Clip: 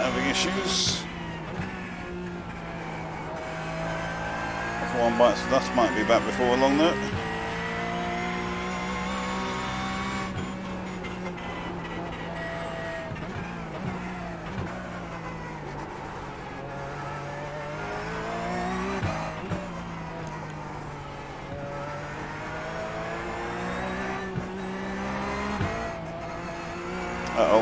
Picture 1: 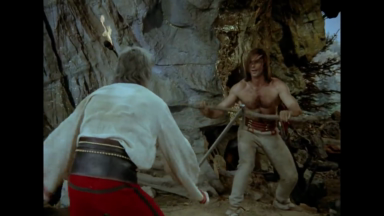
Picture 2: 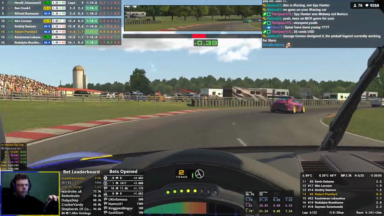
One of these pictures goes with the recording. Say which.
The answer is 2